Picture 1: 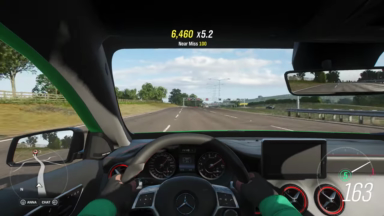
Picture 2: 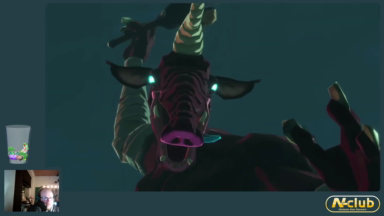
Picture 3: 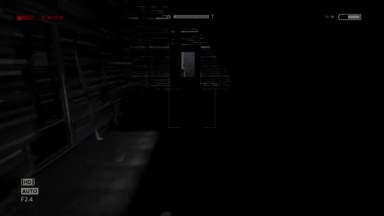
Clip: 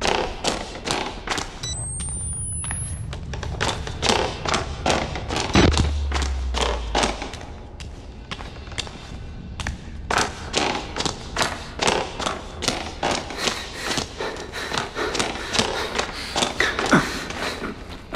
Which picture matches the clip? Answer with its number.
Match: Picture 3